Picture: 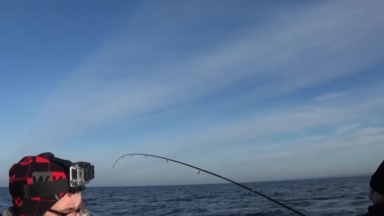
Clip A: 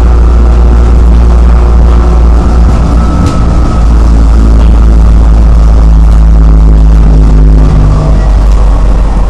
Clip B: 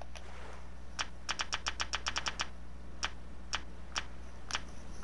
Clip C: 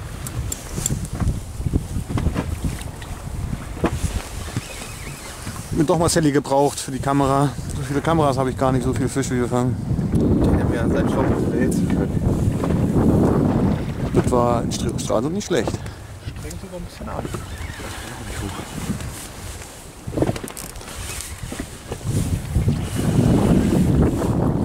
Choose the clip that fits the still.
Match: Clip C